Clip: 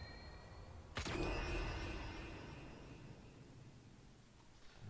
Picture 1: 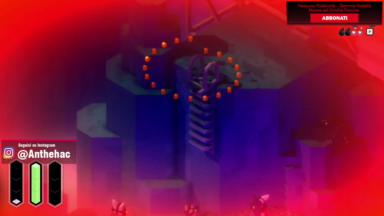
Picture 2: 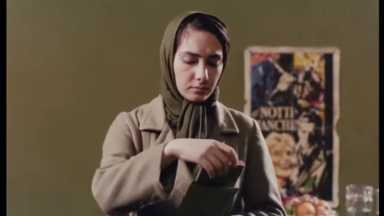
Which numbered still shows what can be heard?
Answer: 1